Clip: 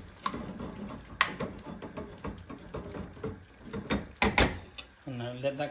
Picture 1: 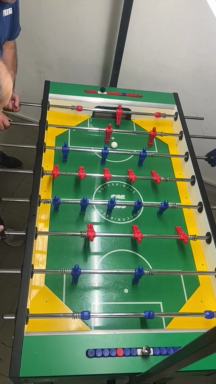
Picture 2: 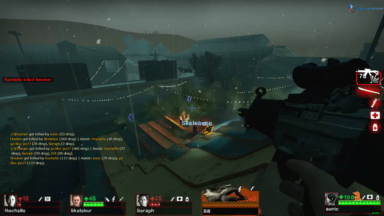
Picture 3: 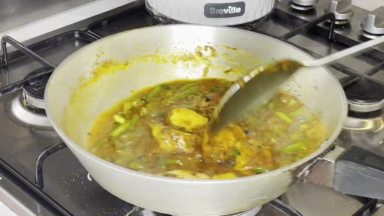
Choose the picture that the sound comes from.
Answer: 3